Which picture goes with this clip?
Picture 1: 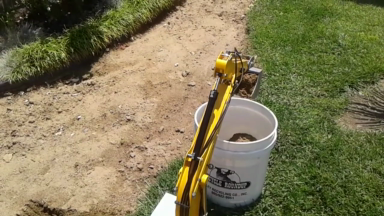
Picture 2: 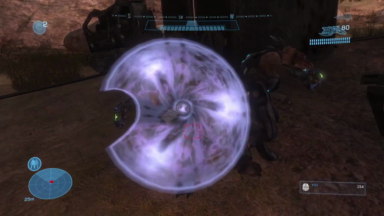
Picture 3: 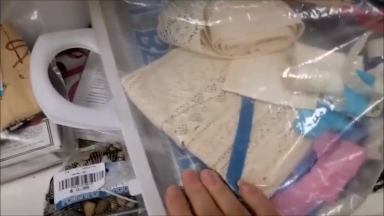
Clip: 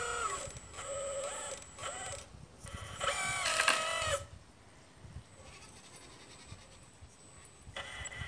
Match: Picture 1